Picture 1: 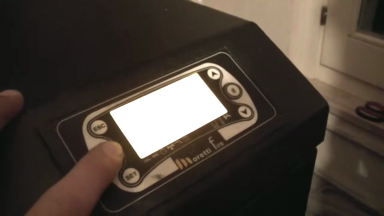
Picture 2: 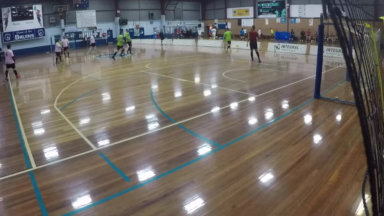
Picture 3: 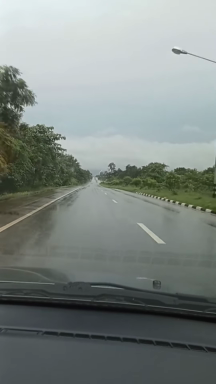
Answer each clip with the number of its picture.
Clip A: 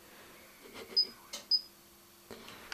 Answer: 1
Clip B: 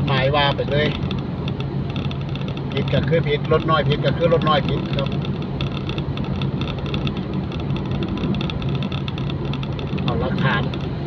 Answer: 3